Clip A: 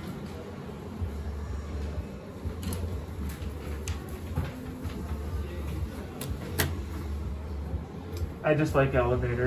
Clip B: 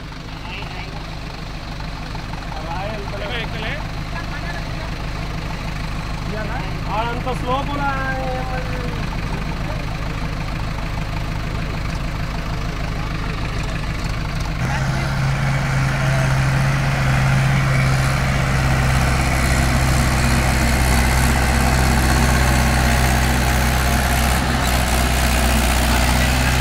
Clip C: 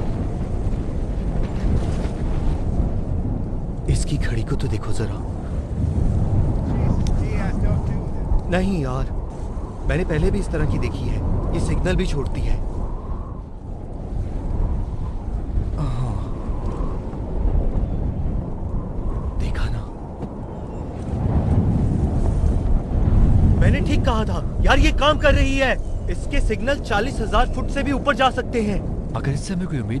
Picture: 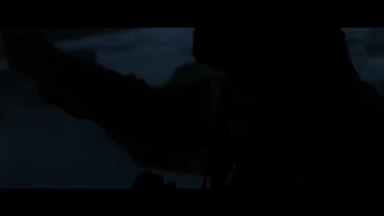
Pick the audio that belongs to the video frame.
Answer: C